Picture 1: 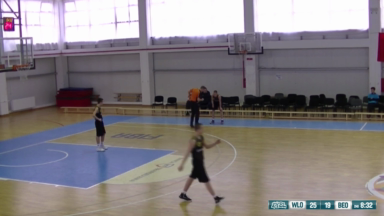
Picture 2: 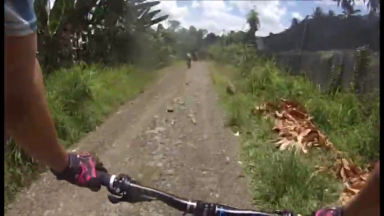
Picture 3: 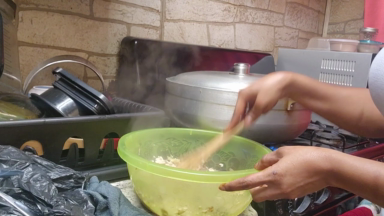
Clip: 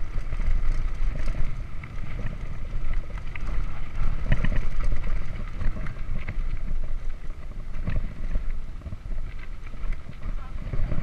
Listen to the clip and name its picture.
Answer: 2